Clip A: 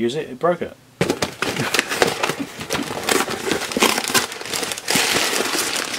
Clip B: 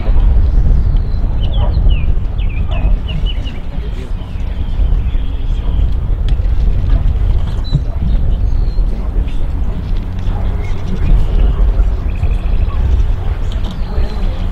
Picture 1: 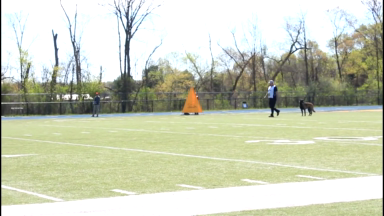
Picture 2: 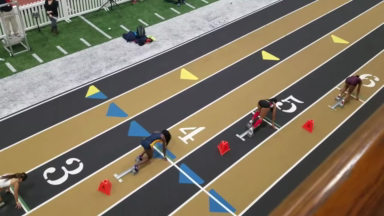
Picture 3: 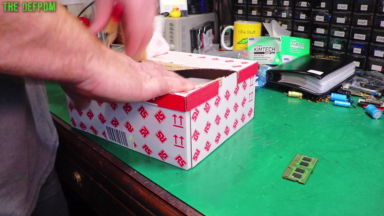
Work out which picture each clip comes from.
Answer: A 3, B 1